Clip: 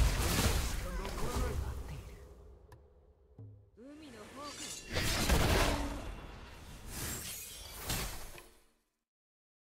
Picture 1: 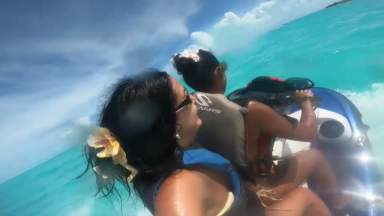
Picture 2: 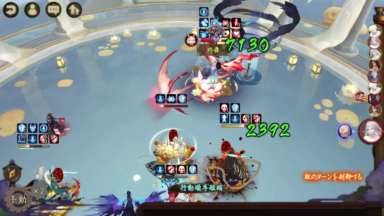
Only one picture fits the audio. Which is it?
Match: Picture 2